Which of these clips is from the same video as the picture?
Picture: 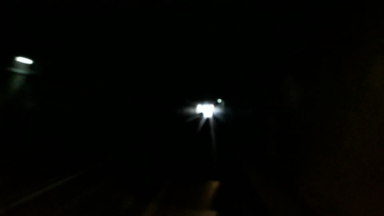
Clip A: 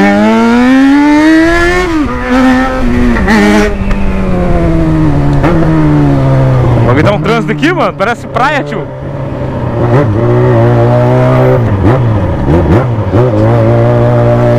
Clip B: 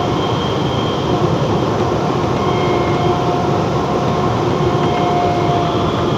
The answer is B